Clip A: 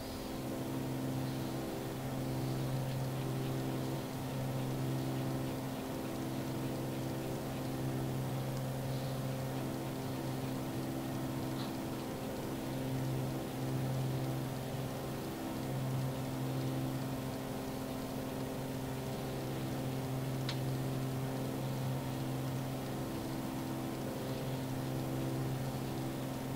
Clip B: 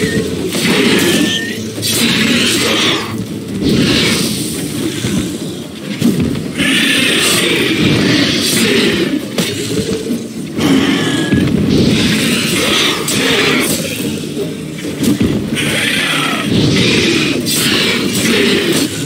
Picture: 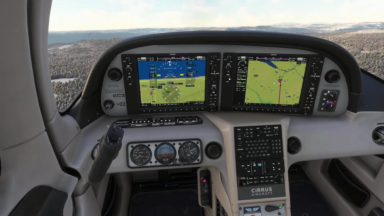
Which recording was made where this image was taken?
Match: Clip A